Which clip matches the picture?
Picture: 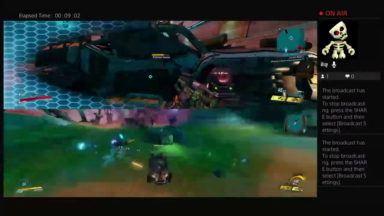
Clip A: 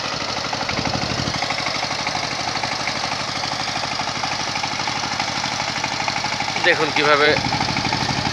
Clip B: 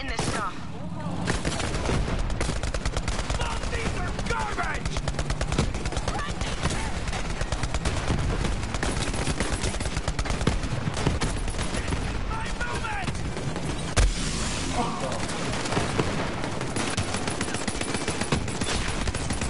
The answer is B